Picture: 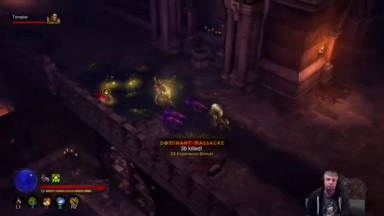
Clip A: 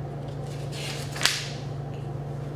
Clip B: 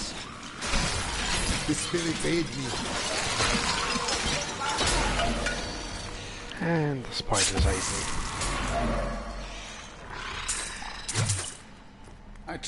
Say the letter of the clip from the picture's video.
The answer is B